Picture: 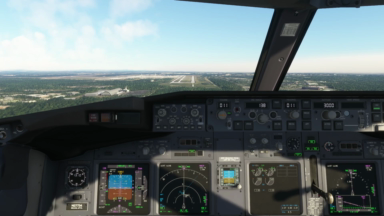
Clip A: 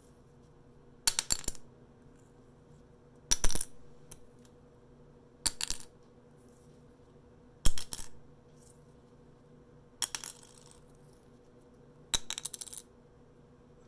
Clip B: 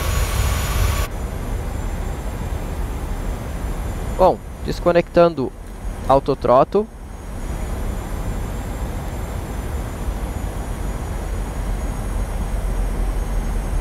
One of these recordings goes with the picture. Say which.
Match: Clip B